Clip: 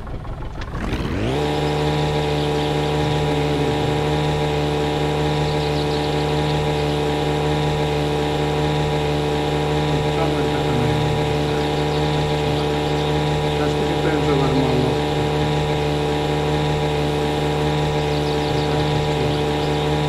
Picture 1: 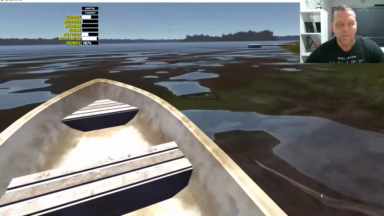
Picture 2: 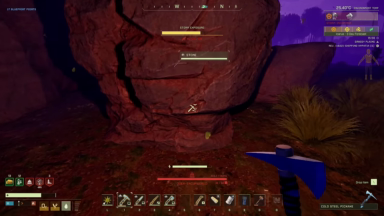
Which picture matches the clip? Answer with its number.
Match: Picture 1